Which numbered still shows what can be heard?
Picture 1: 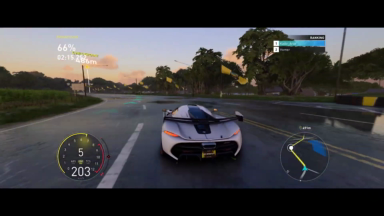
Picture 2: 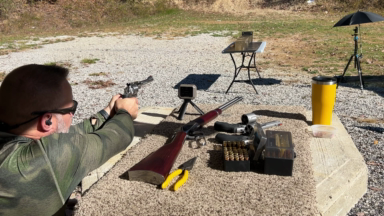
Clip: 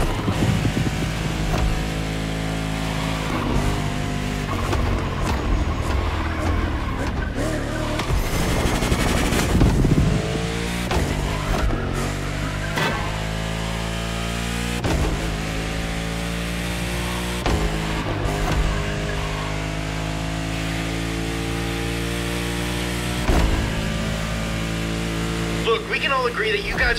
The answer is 1